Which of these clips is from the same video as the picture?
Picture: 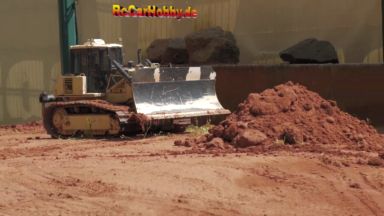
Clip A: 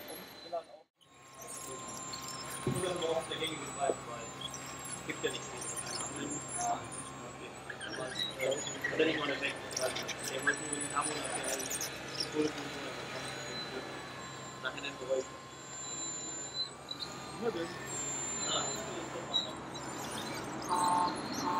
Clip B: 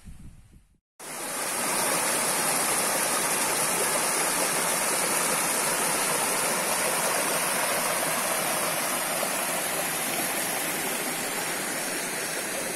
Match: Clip A